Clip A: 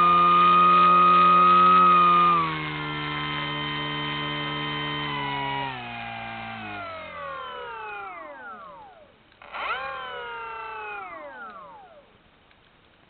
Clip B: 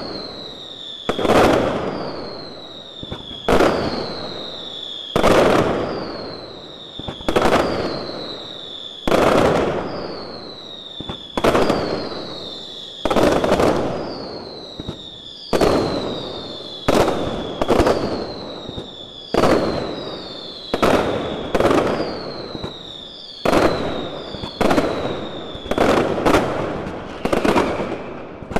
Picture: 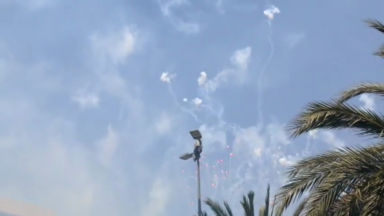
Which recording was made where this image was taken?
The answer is B